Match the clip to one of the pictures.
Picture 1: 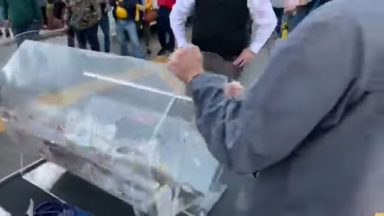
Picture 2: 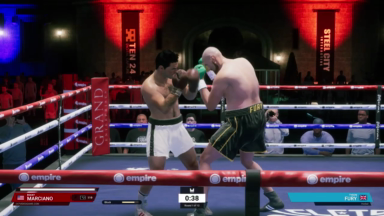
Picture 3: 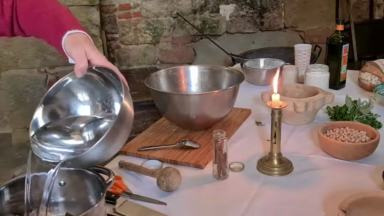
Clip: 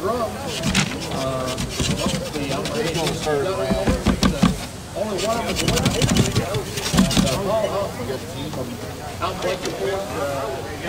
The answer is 1